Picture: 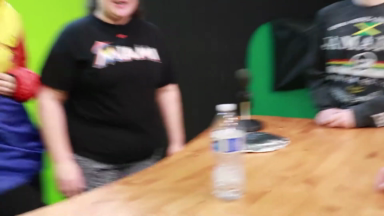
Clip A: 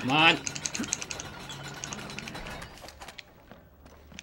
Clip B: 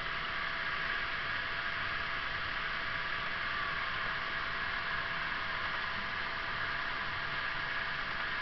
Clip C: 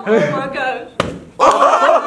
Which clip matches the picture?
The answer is C